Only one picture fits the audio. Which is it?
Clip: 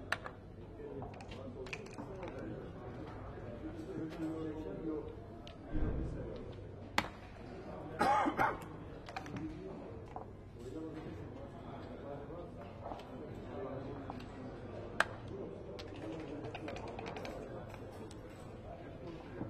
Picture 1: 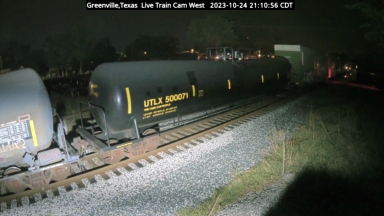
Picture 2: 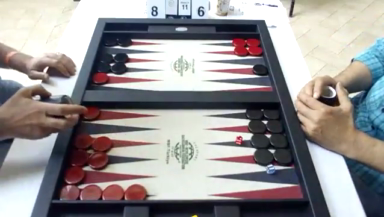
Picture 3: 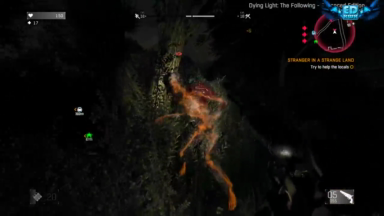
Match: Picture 2